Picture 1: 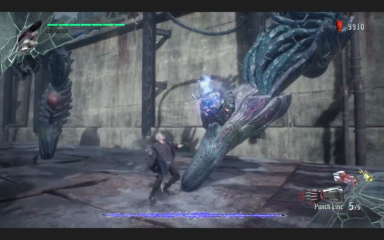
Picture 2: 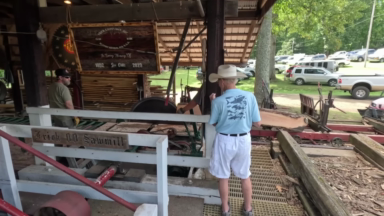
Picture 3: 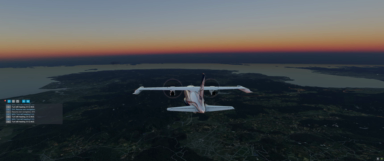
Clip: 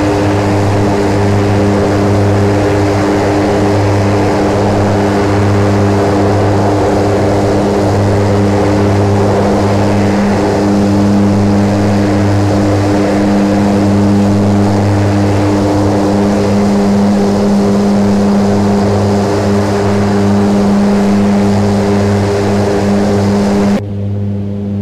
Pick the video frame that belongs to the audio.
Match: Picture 3